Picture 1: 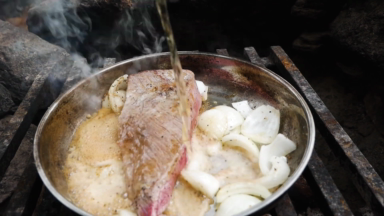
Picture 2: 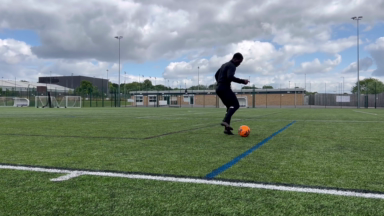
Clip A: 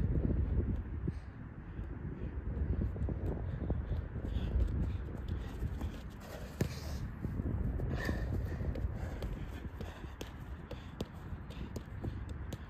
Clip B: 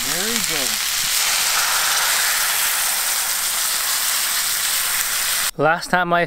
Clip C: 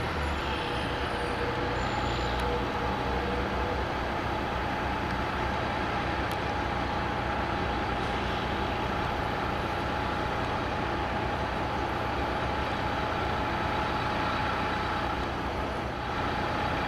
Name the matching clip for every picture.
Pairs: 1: B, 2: A